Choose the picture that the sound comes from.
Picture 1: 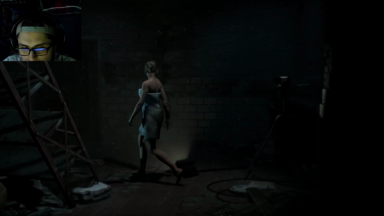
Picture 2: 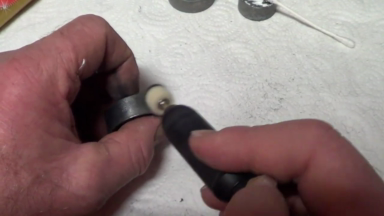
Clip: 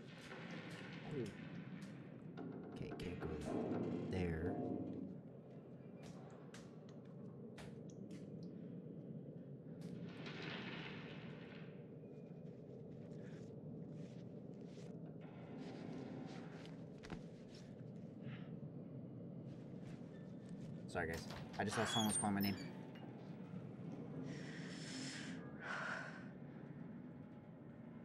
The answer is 1